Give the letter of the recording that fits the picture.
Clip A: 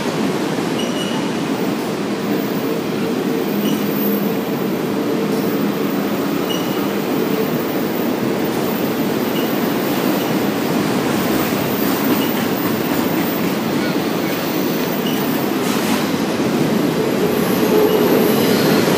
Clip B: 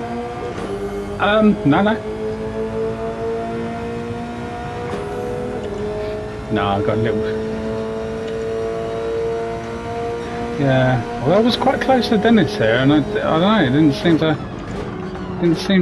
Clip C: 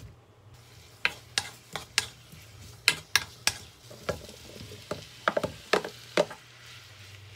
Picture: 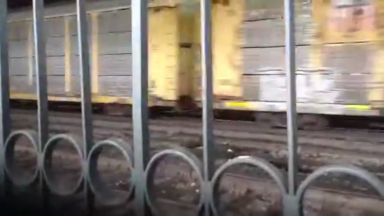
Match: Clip A